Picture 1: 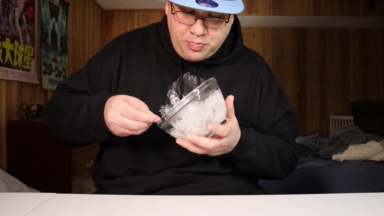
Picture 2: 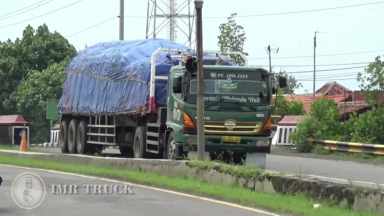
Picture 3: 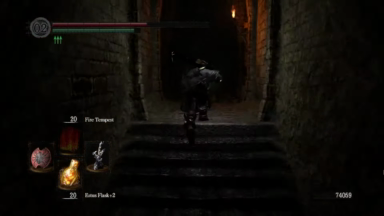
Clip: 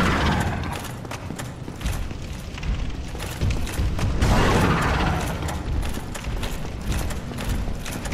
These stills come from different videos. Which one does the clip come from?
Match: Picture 3